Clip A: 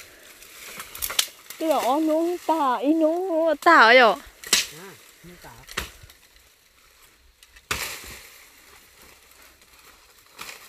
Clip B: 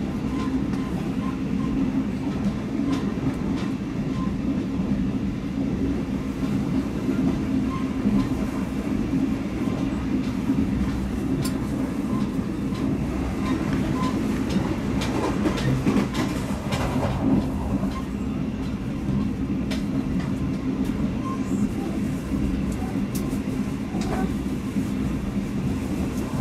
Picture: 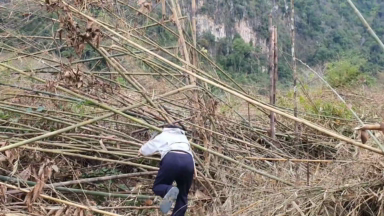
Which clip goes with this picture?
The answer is A